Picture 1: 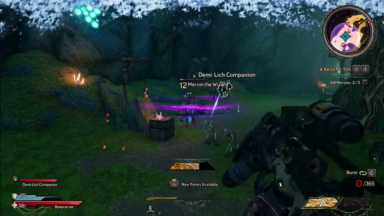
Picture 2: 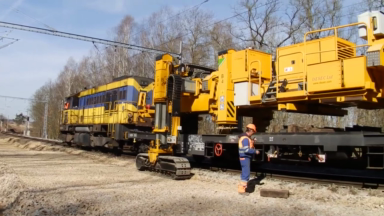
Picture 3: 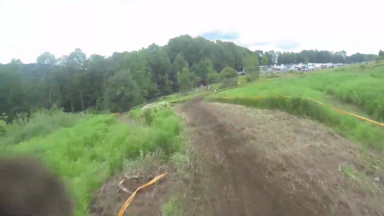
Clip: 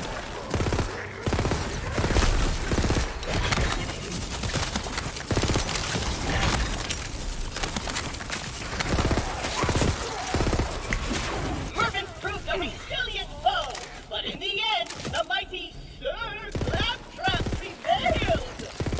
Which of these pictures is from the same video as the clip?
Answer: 1